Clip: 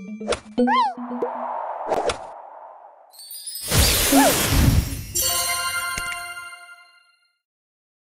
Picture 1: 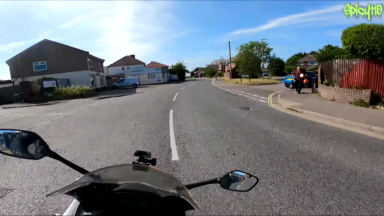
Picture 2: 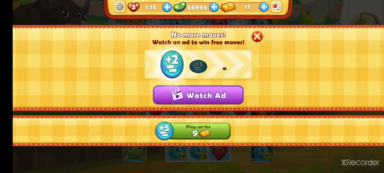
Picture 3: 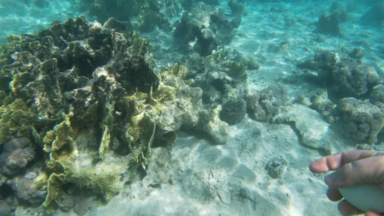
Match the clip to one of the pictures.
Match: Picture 2